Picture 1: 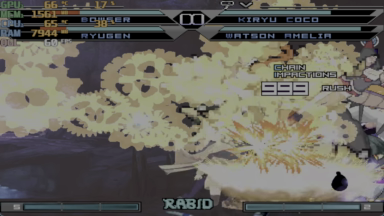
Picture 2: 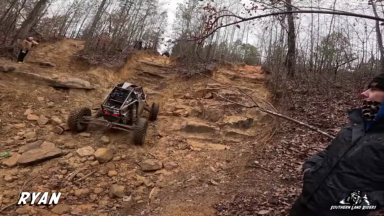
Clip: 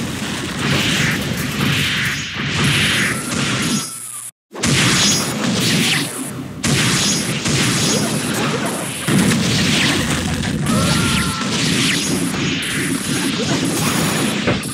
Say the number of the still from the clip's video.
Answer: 1